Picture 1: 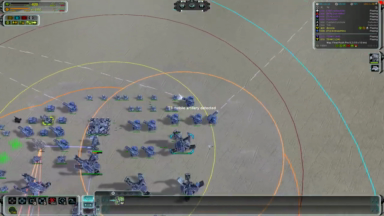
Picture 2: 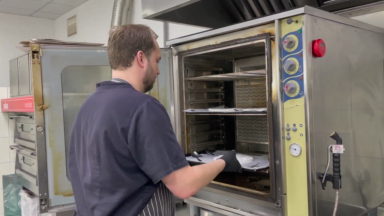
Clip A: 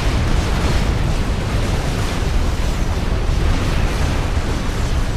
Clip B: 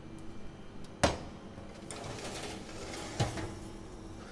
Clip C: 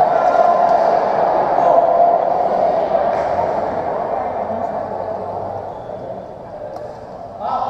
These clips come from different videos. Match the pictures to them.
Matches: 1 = A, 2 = B